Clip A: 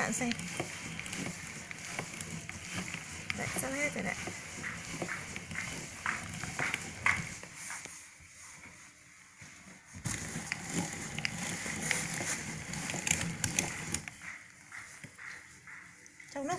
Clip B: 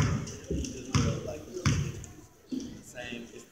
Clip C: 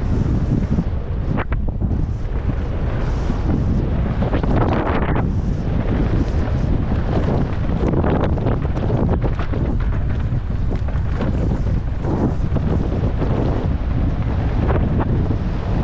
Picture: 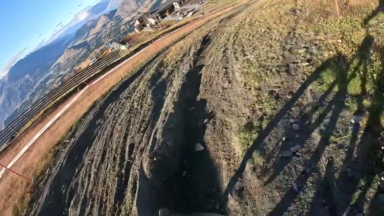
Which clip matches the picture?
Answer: C